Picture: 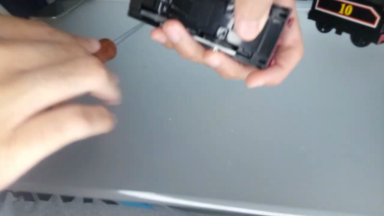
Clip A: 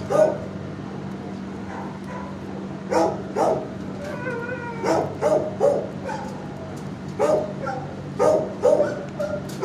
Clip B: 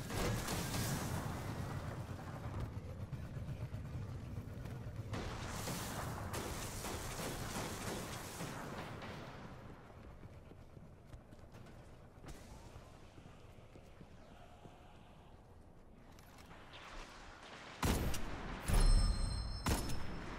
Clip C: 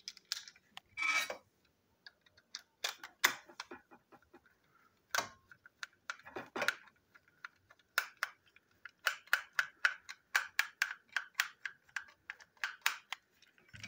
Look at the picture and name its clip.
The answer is C